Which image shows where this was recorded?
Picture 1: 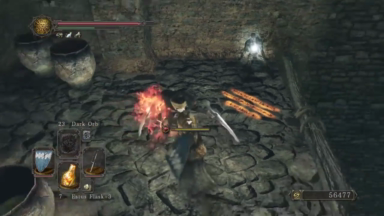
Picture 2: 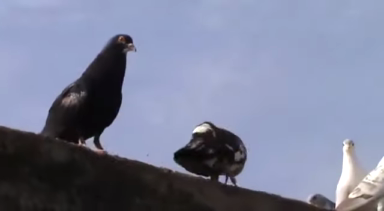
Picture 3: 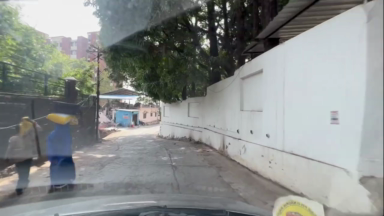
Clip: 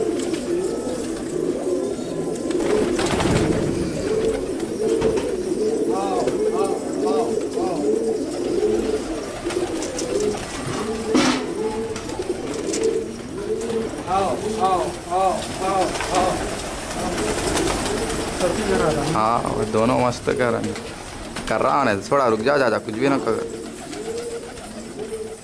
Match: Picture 2